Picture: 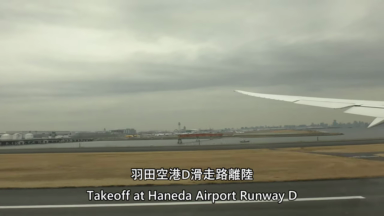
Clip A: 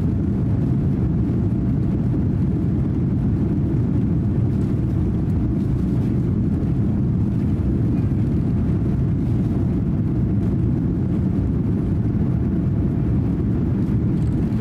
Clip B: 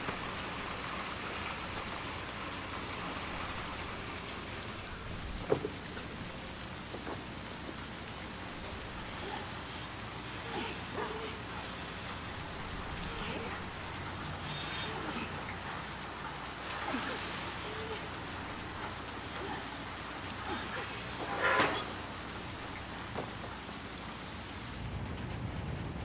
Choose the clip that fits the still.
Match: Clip A